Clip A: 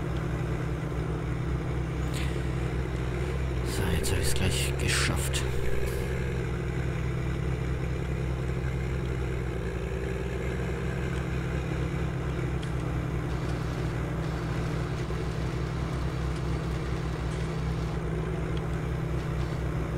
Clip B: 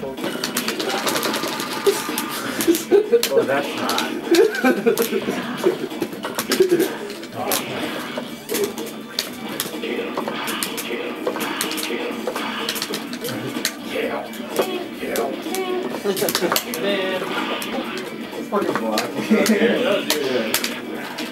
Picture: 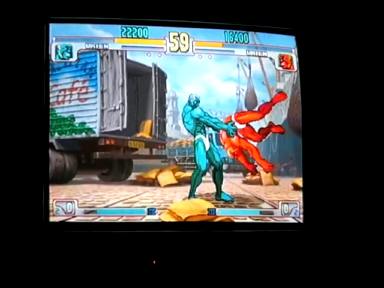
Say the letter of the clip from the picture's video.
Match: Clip B